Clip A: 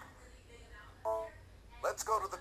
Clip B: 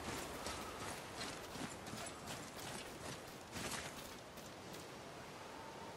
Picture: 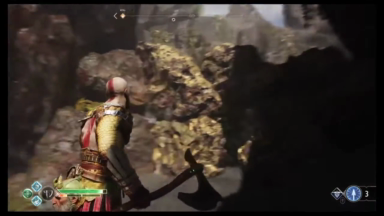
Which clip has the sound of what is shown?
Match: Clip B